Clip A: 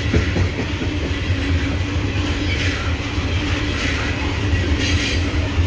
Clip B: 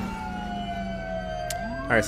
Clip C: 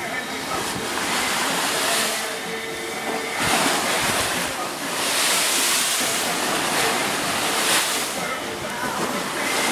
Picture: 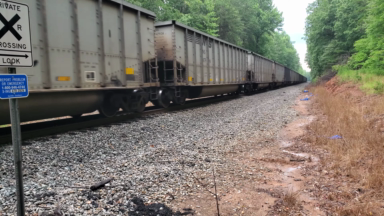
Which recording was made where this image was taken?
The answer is A